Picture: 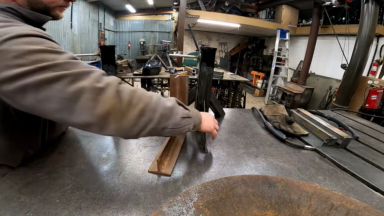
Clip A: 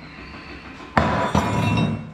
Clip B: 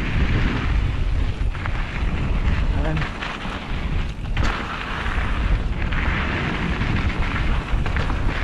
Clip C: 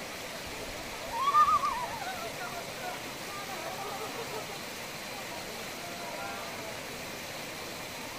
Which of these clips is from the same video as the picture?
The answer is A